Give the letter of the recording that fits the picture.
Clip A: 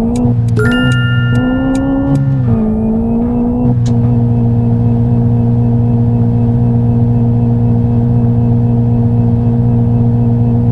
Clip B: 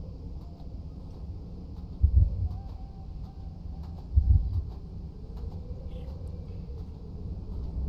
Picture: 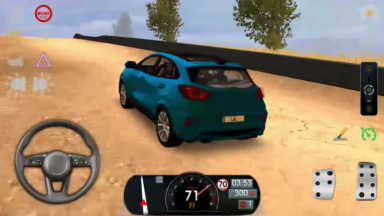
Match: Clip A